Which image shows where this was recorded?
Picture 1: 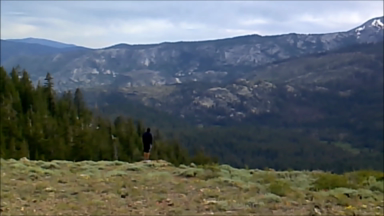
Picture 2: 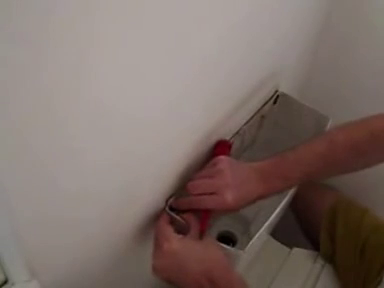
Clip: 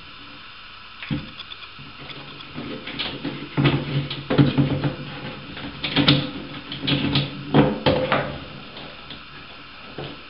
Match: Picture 2